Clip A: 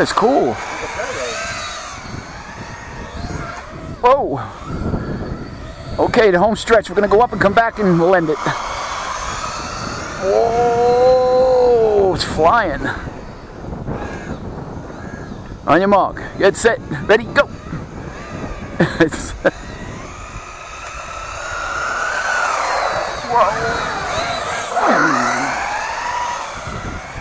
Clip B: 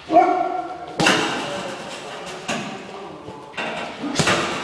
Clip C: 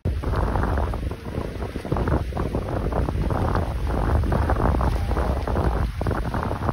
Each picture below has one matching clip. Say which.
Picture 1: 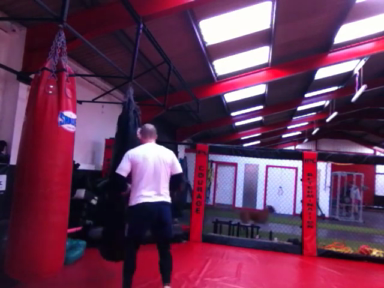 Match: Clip B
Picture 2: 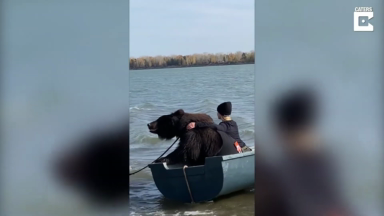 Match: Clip C